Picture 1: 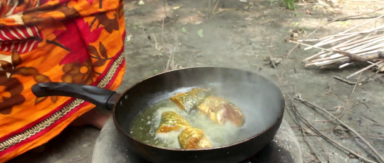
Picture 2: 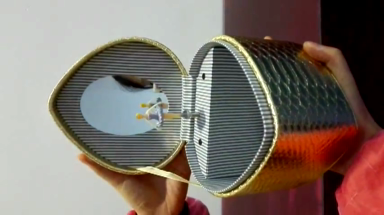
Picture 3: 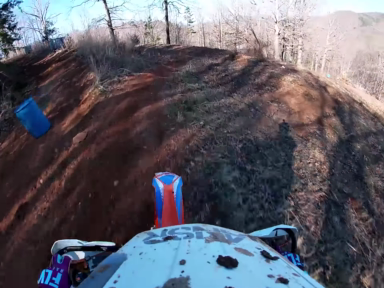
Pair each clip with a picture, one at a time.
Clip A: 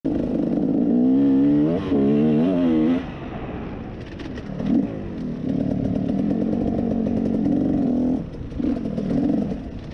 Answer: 3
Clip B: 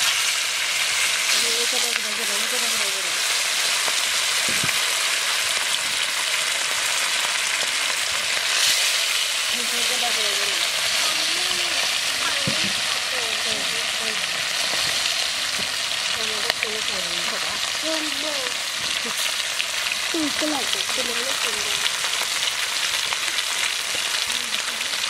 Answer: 1